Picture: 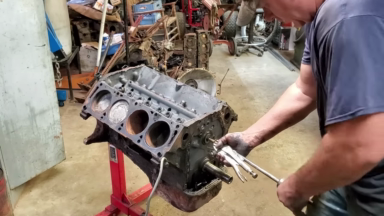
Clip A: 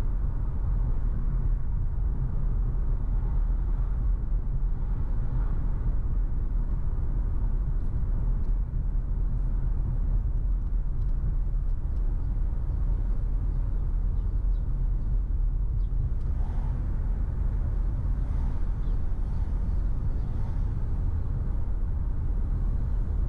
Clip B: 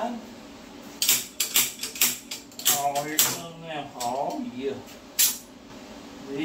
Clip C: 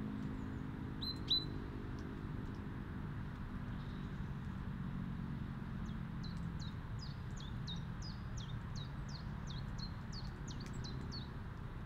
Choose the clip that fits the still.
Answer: B